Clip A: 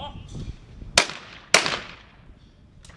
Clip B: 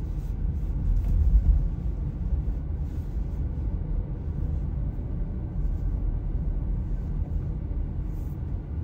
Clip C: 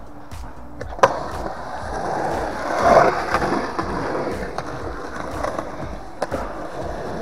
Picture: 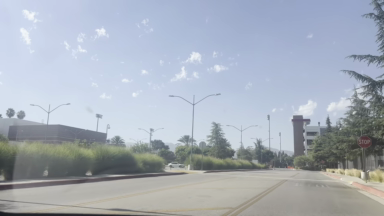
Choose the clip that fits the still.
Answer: B